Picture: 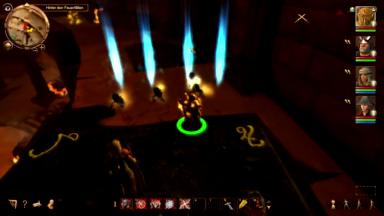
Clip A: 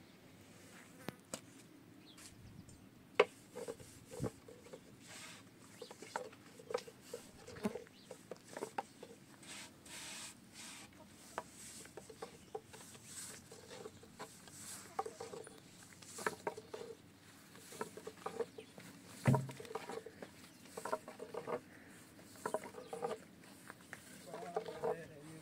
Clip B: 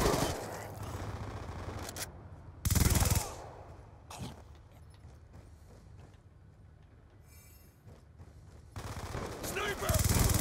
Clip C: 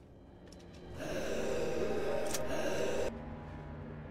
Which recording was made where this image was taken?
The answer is C